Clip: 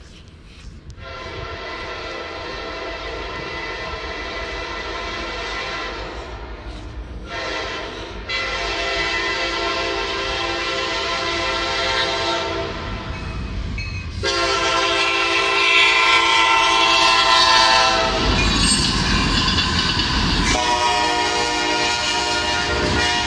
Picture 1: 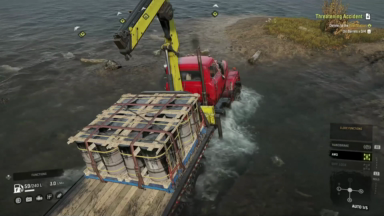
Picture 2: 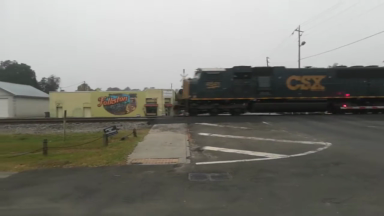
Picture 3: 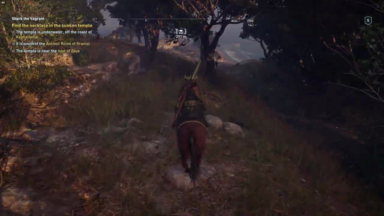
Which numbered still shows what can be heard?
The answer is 2